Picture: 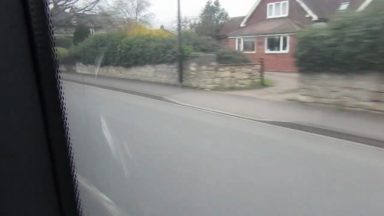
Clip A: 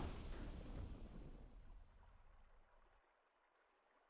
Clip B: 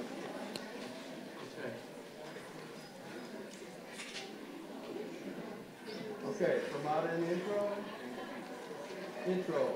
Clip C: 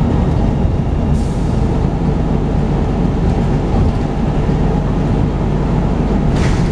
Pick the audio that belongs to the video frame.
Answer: C